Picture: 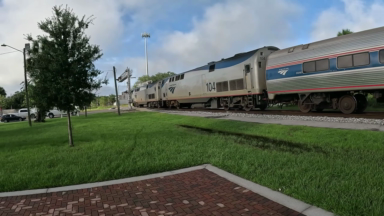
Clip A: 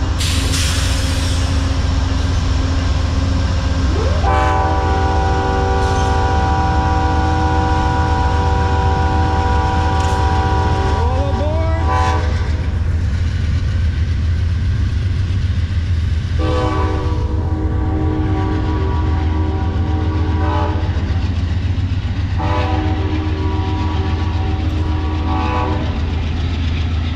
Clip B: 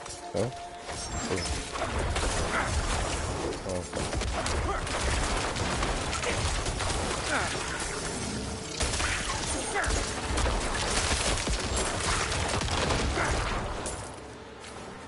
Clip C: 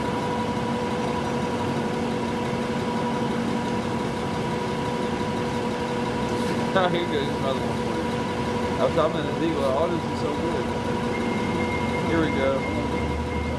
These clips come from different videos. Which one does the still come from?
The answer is A